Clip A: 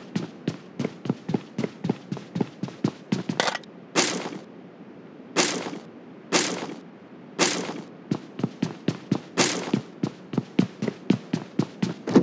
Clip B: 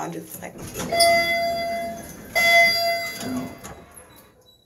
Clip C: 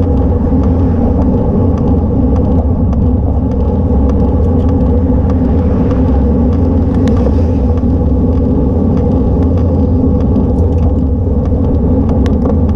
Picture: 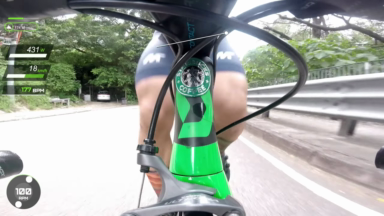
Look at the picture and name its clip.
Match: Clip C